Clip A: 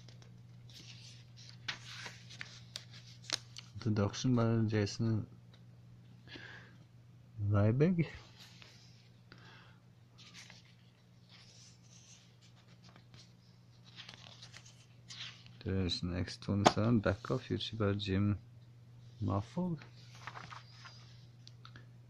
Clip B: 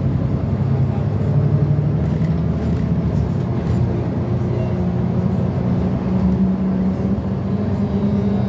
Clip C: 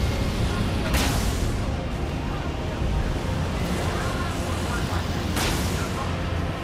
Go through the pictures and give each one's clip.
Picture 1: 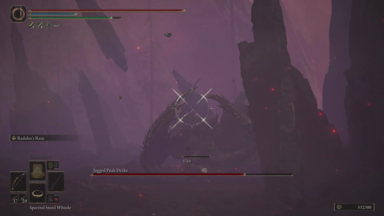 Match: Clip C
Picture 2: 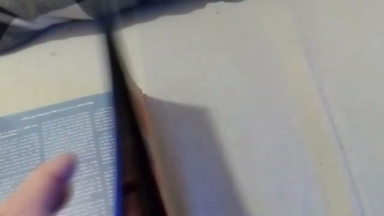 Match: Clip A